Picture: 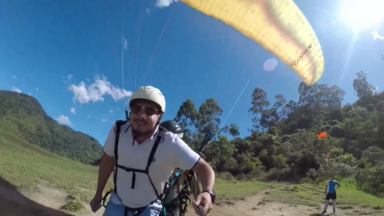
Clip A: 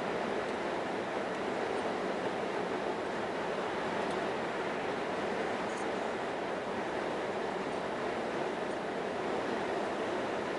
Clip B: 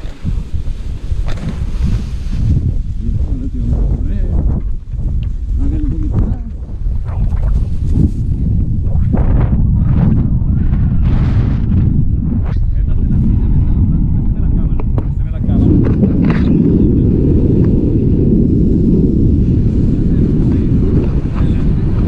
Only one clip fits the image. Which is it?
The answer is B